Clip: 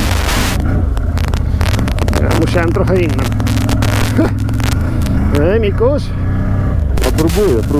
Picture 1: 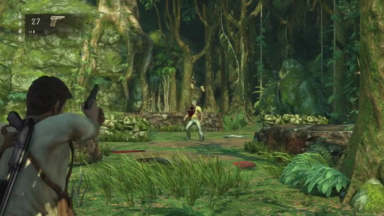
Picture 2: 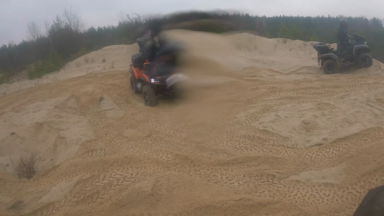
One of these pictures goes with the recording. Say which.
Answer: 2